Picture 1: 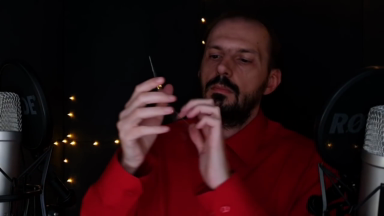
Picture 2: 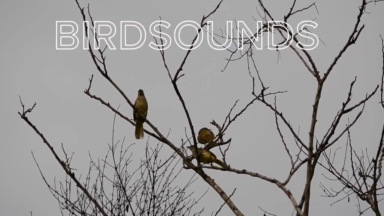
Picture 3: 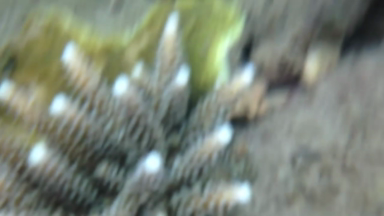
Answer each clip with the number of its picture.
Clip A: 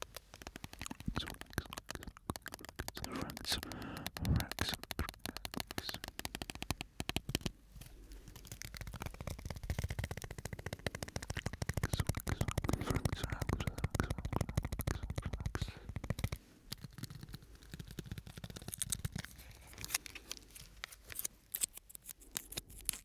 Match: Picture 1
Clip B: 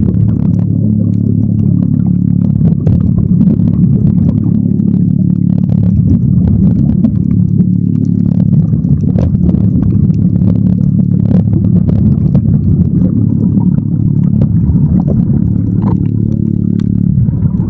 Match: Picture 3